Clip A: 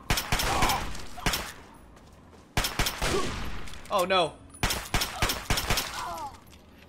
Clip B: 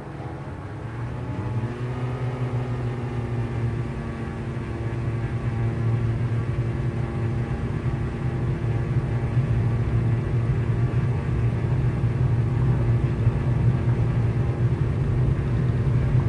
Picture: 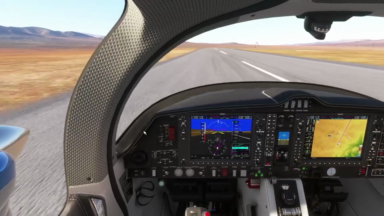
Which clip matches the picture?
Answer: B